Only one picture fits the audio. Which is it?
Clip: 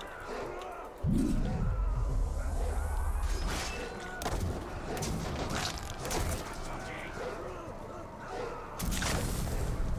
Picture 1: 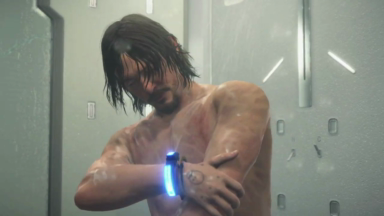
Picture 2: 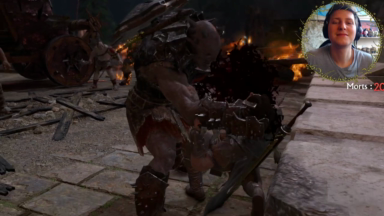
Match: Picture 2